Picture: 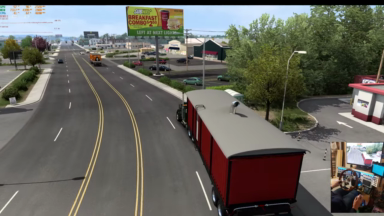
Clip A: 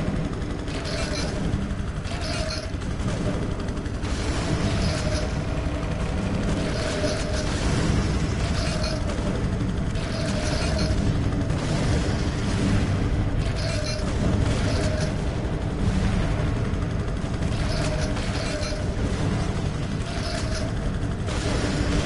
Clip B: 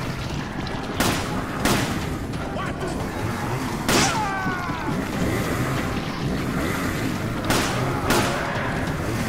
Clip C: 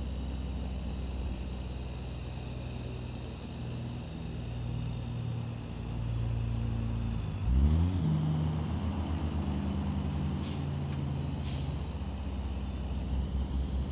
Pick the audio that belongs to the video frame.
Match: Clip C